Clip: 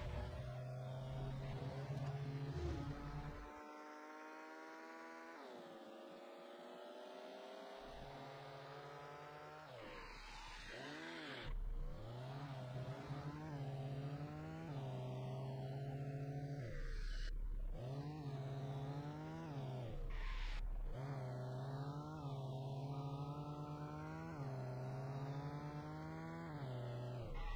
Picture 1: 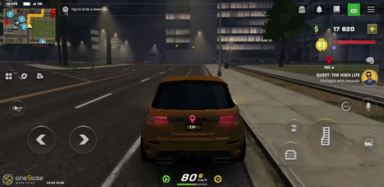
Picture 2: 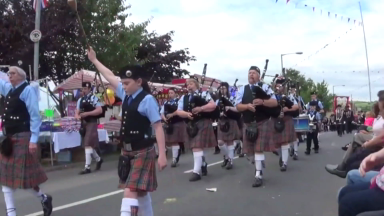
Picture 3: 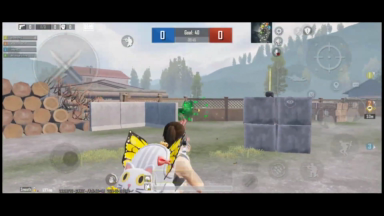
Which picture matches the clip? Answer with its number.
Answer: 1